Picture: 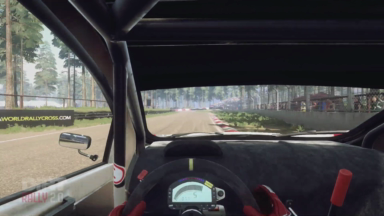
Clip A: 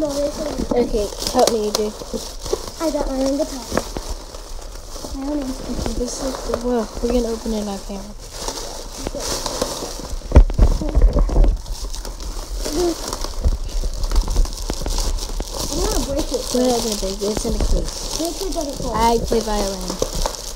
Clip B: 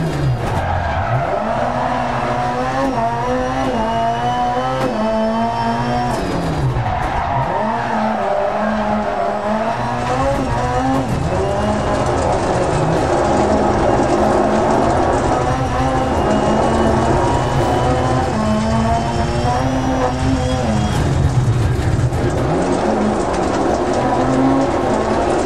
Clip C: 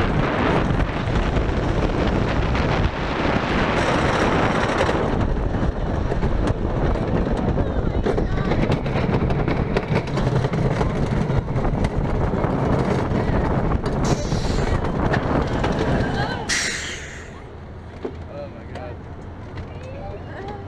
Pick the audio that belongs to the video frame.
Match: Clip B